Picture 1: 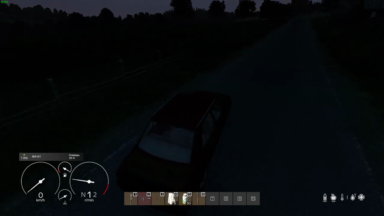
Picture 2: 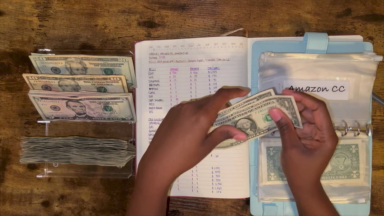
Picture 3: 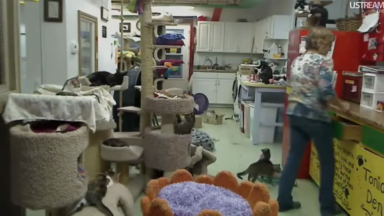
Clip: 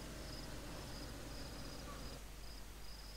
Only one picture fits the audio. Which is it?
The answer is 1